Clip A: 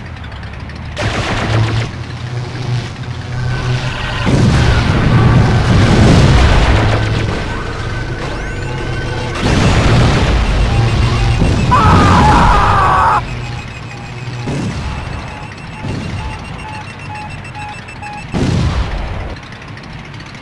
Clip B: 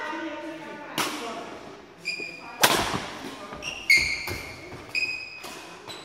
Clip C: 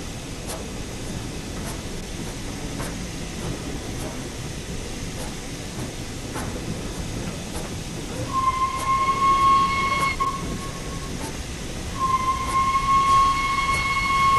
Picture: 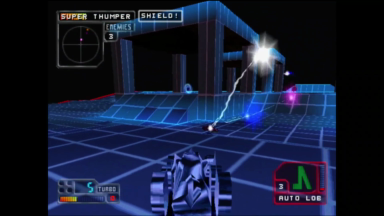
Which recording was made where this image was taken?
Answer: A